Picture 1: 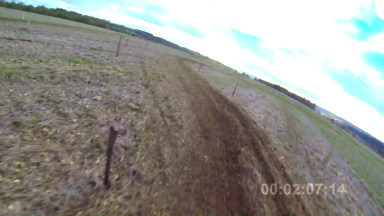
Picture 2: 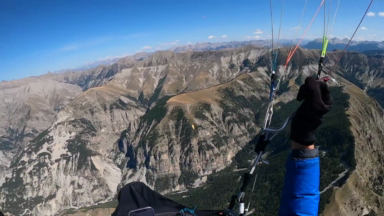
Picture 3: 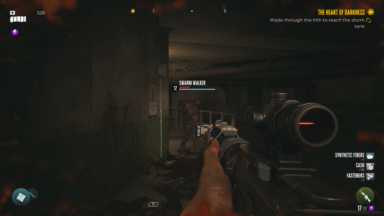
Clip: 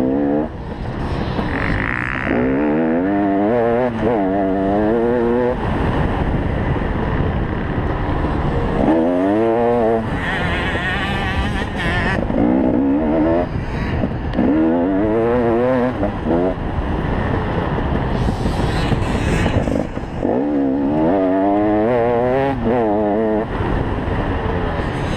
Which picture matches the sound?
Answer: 1